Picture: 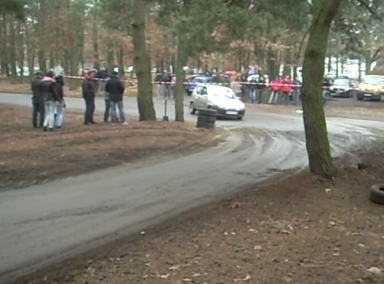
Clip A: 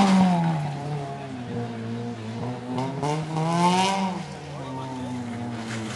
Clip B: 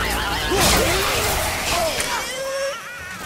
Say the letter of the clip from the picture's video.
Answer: A